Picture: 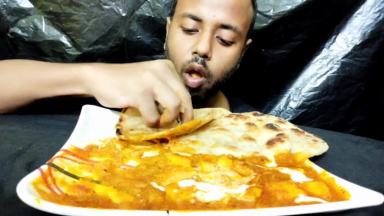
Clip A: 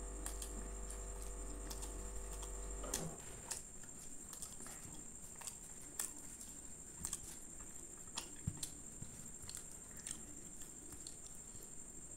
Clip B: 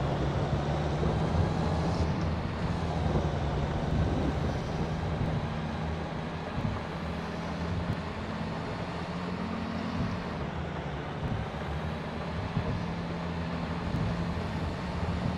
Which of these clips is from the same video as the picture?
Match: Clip A